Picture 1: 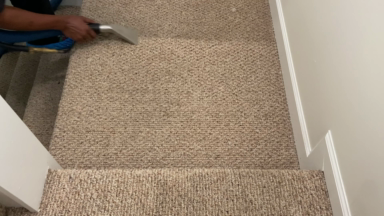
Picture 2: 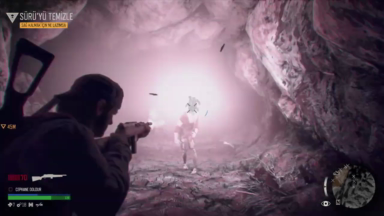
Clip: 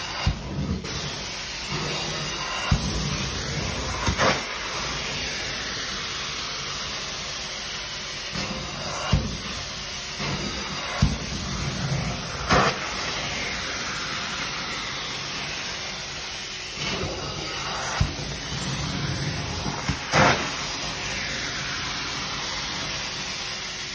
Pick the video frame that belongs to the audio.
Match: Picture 1